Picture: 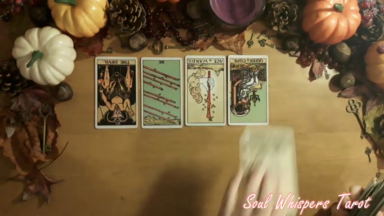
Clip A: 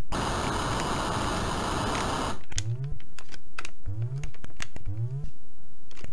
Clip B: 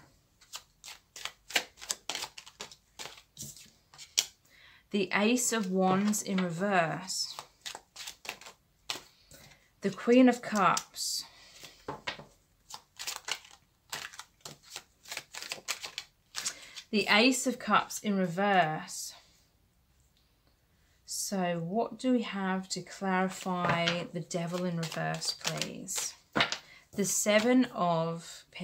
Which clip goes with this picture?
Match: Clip B